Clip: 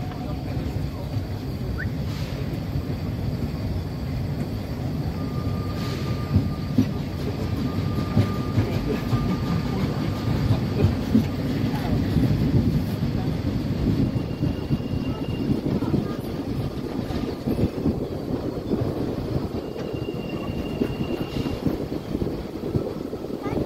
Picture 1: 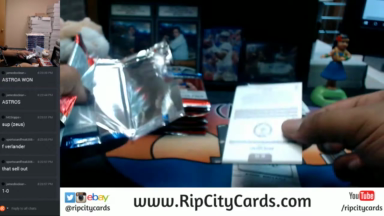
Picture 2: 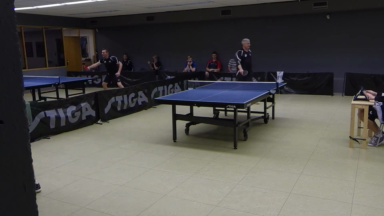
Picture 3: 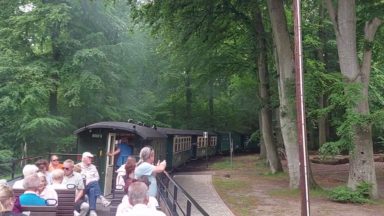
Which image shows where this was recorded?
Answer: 3